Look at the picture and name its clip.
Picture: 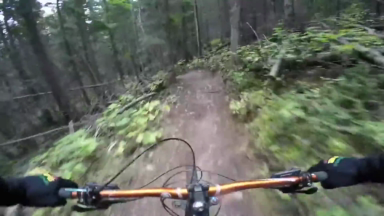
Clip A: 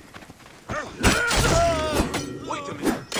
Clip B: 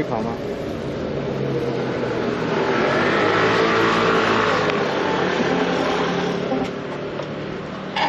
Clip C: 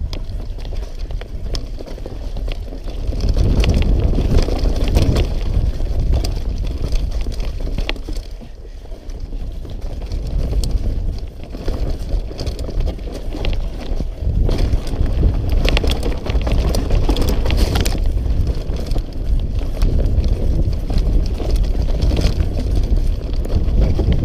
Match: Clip C